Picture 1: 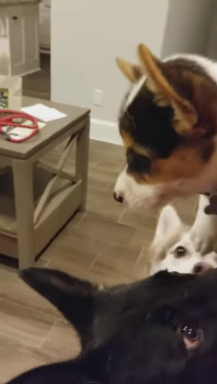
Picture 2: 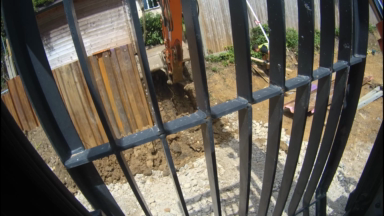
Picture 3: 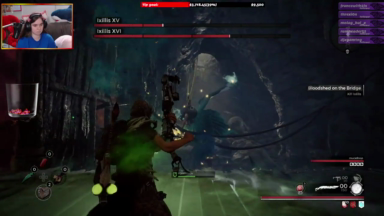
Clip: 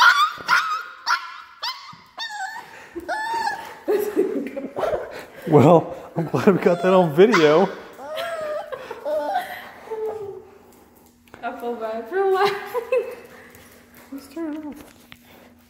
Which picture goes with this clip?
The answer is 1